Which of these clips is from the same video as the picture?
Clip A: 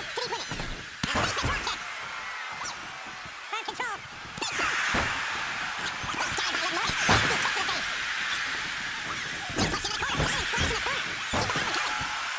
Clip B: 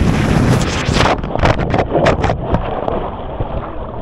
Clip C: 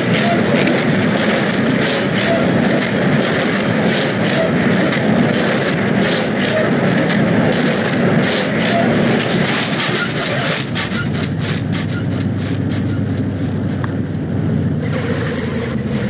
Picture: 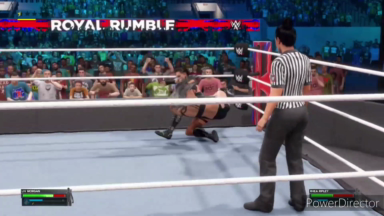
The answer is A